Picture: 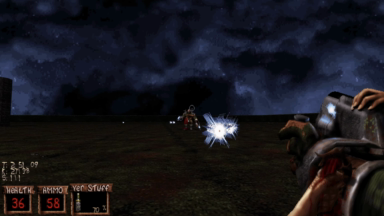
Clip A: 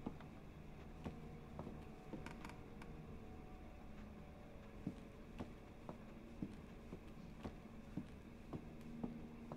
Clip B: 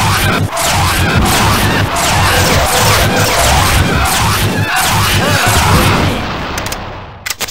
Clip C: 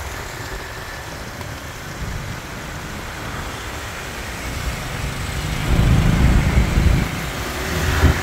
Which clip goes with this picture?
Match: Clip B